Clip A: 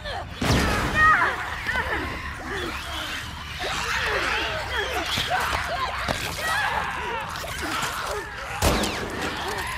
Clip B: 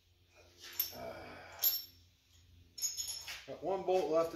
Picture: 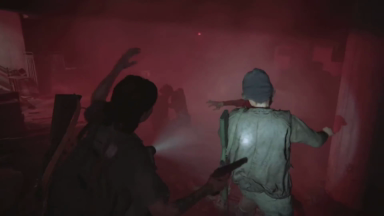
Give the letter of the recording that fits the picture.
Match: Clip A